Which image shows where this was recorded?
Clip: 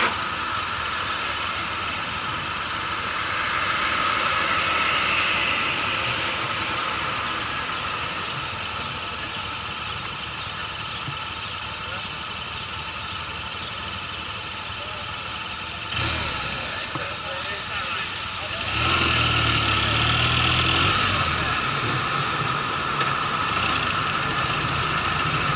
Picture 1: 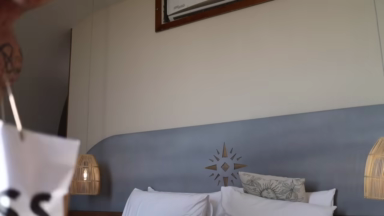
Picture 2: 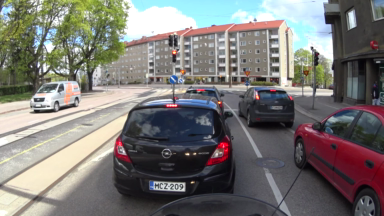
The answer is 2